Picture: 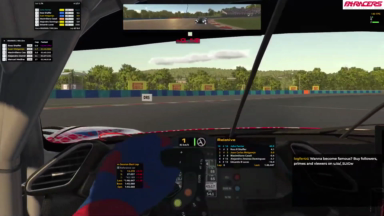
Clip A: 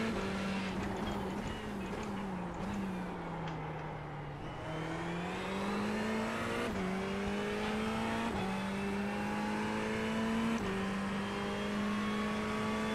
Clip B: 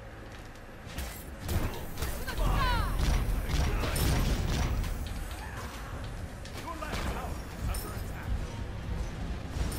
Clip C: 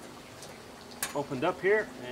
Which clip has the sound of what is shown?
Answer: A